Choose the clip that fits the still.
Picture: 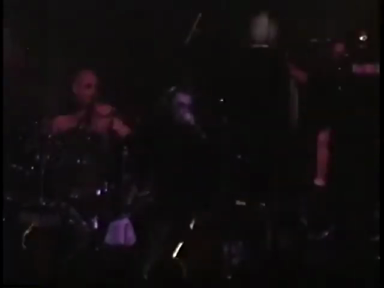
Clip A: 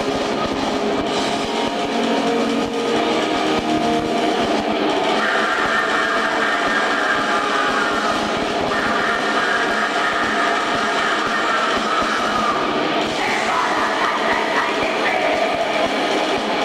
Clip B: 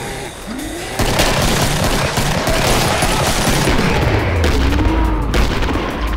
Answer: A